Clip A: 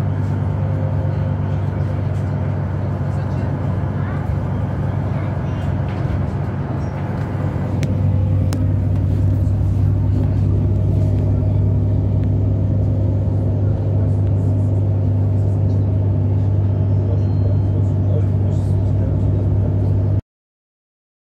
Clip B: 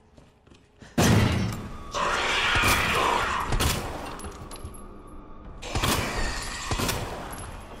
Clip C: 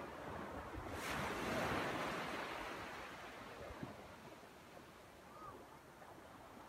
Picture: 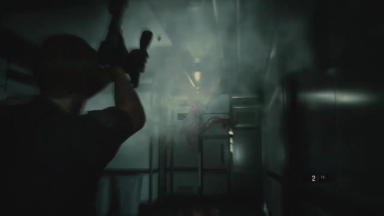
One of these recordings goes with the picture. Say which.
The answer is B